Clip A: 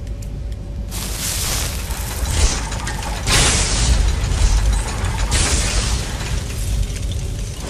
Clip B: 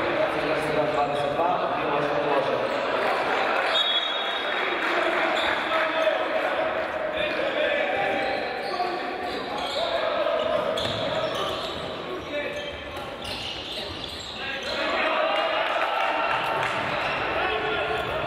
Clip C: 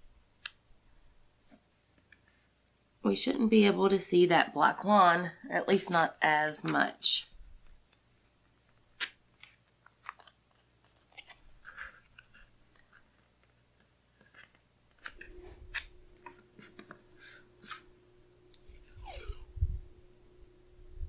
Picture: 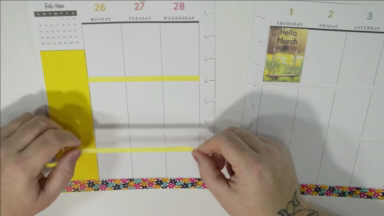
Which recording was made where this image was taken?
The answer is C